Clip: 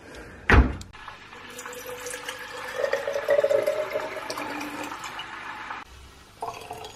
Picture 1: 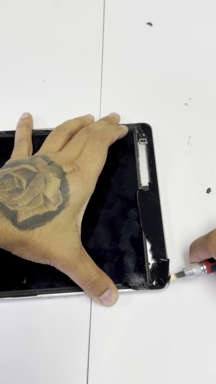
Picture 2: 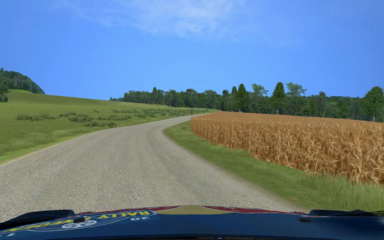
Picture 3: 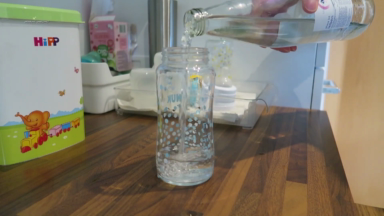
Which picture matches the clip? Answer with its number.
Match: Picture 3